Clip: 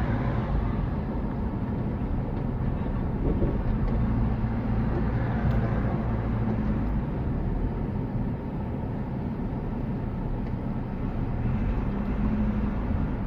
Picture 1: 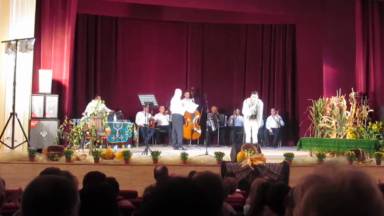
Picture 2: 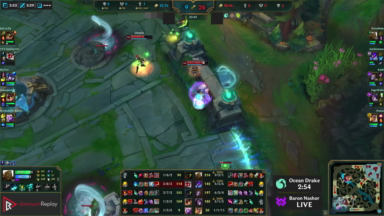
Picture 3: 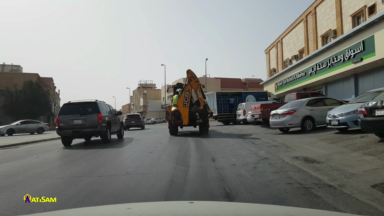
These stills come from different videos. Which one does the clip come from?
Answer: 3